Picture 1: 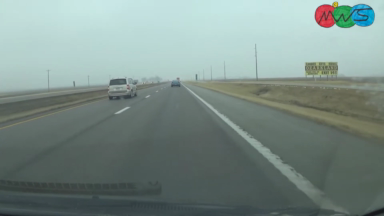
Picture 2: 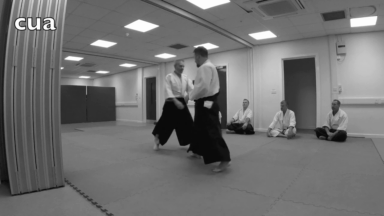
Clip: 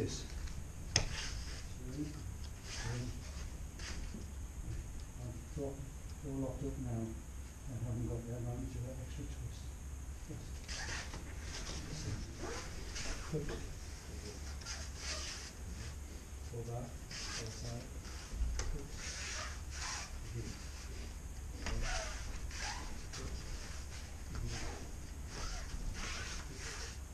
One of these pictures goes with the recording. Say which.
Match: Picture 2